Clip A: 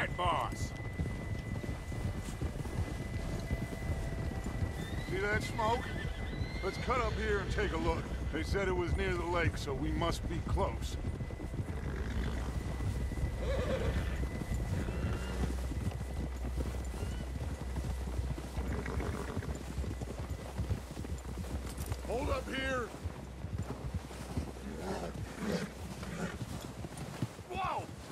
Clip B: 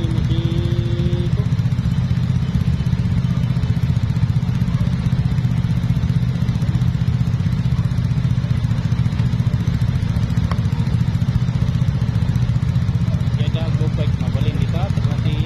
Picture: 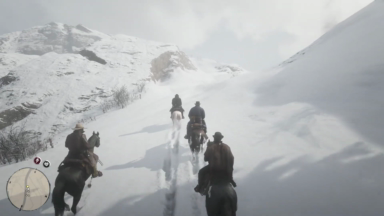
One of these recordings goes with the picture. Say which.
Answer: A